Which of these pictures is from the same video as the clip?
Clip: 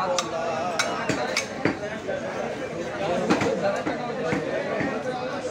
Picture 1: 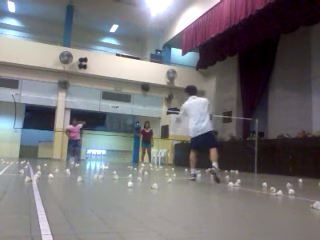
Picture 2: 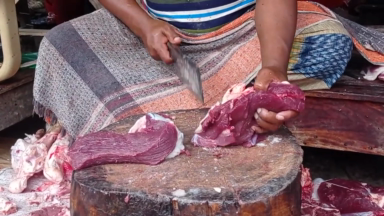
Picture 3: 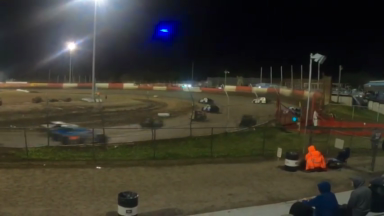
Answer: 2